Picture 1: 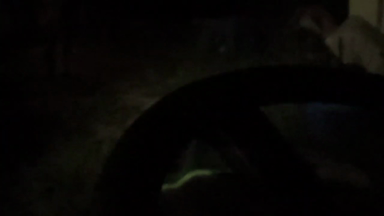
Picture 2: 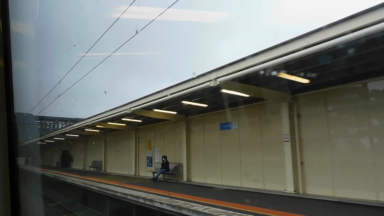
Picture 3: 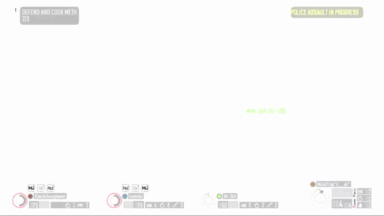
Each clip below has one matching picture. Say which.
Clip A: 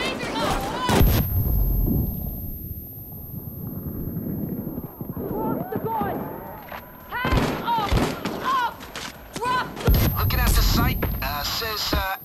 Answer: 3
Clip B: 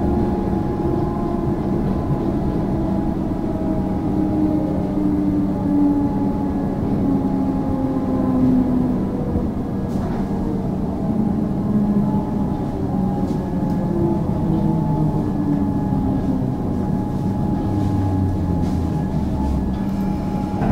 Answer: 2